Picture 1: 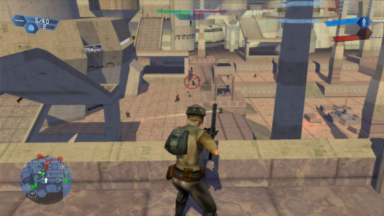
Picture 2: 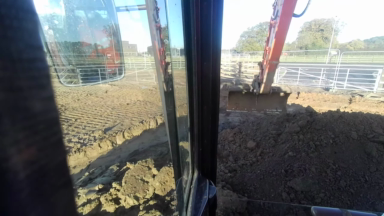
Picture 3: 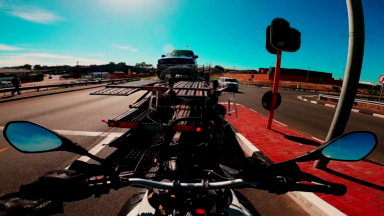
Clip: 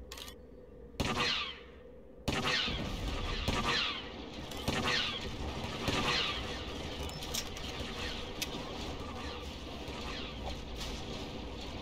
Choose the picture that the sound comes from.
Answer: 1